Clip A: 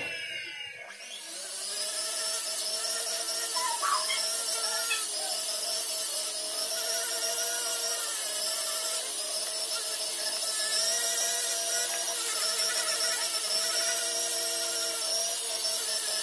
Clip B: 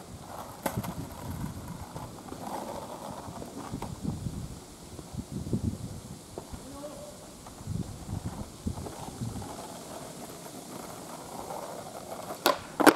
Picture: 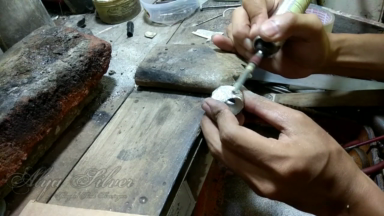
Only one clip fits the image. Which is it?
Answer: A